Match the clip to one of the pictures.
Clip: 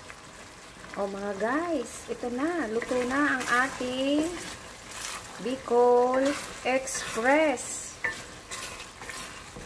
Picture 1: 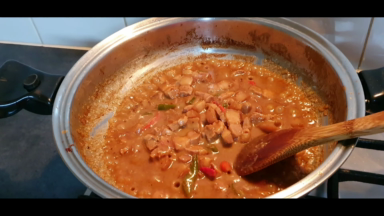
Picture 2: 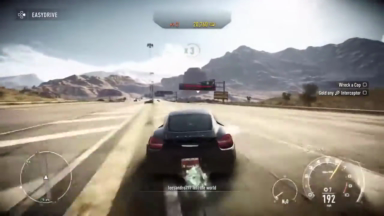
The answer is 1